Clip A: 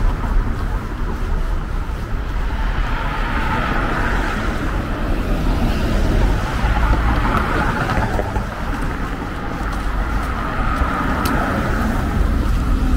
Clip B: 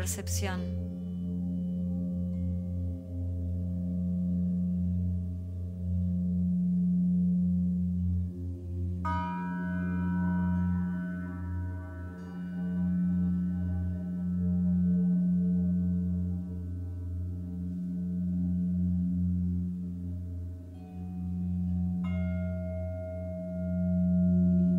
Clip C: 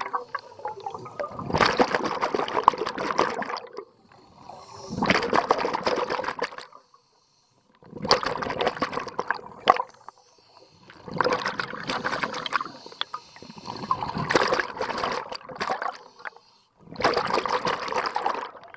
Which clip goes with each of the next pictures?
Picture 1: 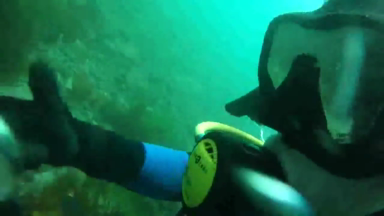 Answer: C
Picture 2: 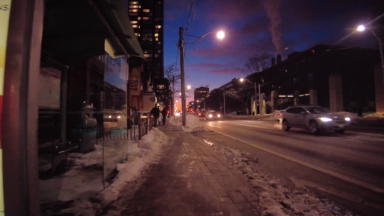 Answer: A